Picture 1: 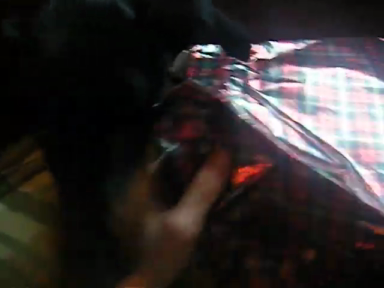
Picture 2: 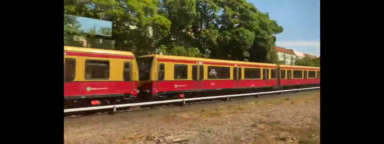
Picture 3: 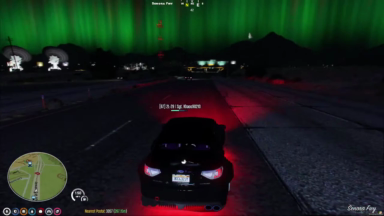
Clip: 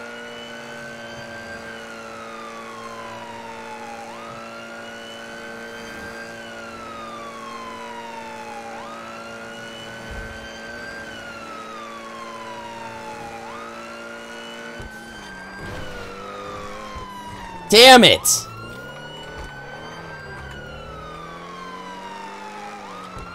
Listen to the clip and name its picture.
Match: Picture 3